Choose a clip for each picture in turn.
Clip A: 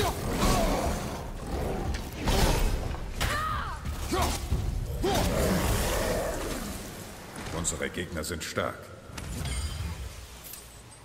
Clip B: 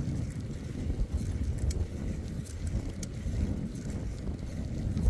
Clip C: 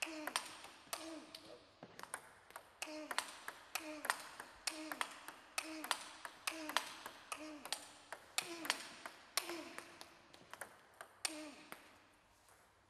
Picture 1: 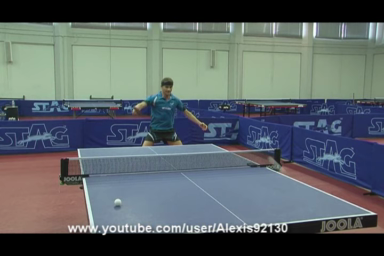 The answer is C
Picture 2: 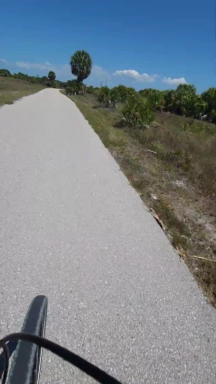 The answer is B